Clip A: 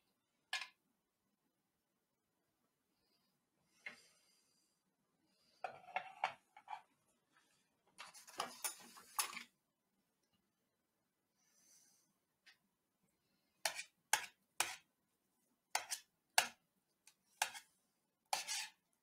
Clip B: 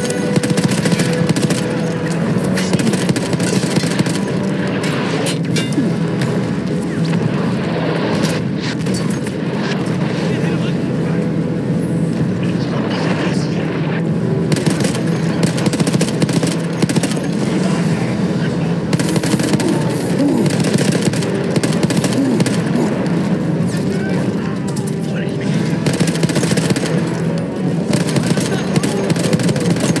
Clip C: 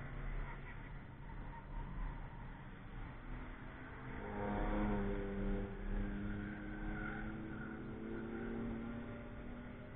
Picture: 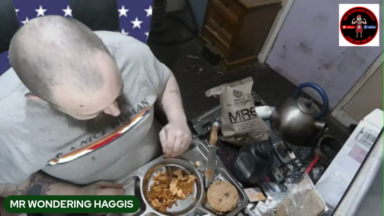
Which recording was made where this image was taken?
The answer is A